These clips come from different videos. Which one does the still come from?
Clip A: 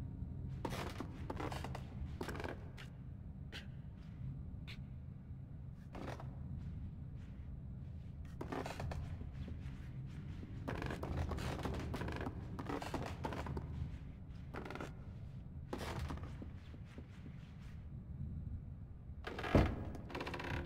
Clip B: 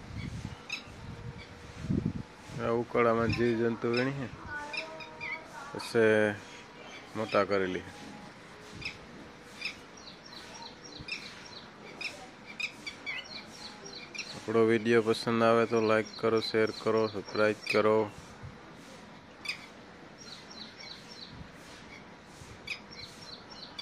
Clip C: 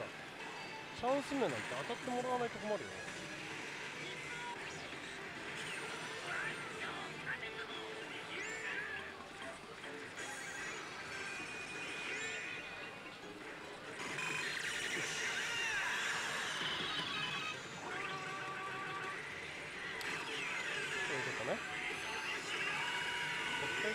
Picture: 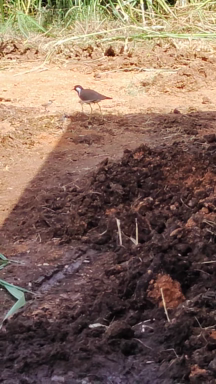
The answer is B